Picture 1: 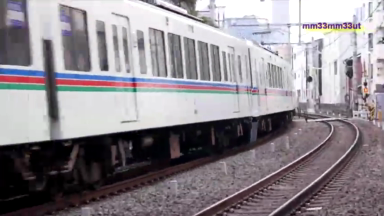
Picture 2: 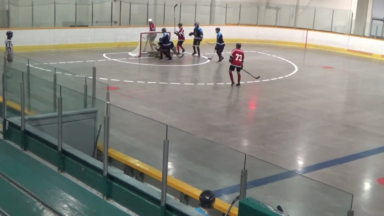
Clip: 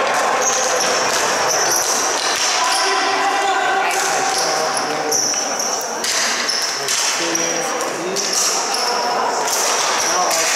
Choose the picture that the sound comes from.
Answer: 2